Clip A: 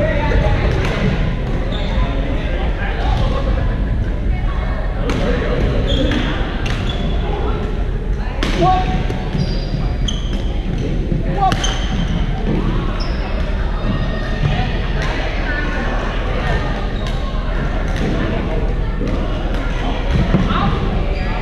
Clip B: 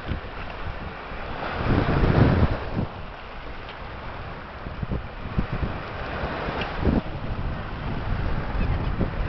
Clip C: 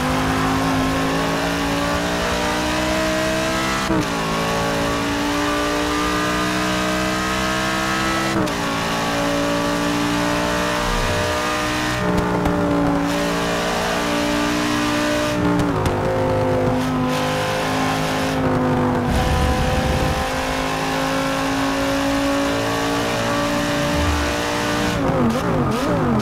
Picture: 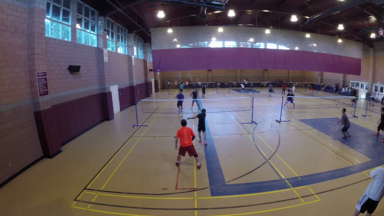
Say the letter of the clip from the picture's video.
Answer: A